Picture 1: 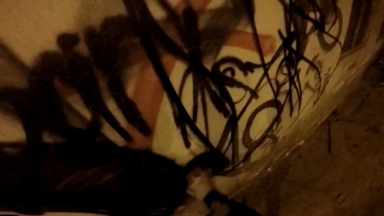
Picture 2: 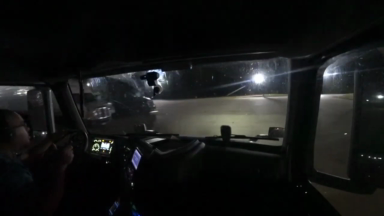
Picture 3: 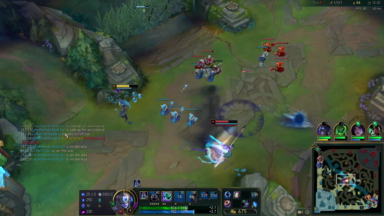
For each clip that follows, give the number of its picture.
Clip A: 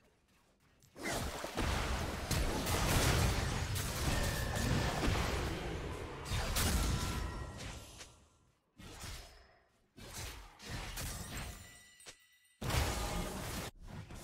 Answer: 3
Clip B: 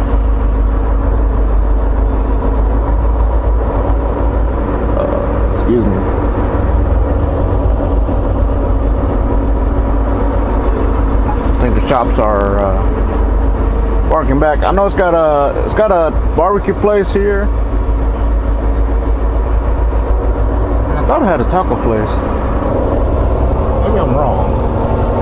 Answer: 2